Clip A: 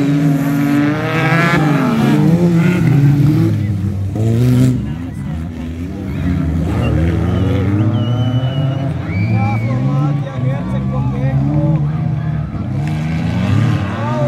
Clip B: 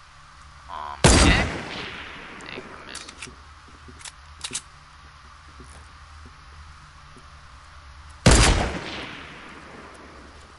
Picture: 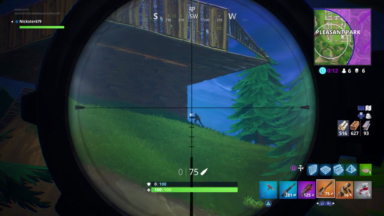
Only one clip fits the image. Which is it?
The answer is B